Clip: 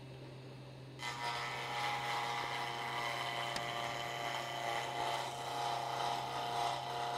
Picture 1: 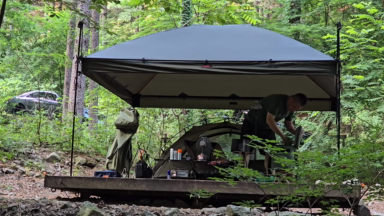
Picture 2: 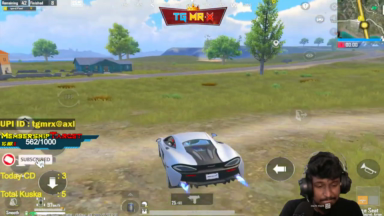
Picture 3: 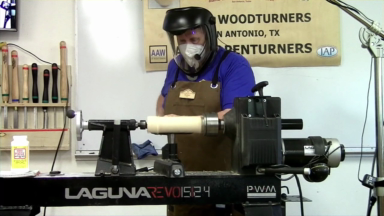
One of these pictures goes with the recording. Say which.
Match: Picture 3